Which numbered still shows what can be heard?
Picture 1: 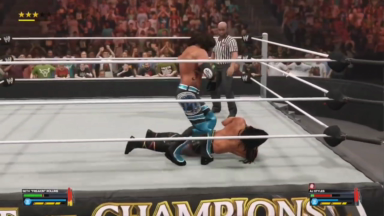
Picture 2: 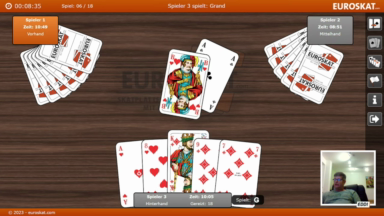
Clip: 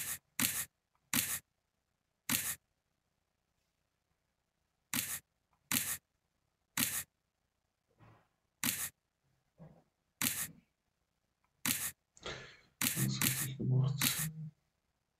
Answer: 2